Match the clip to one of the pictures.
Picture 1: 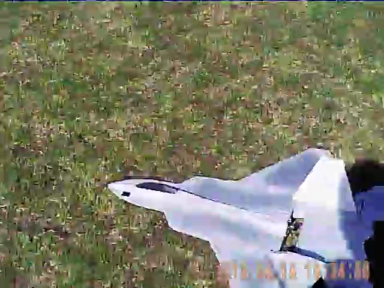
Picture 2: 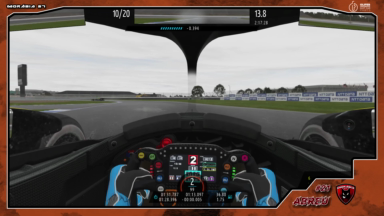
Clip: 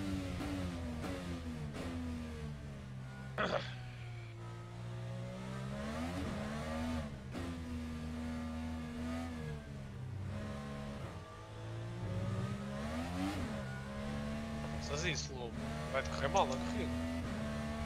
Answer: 2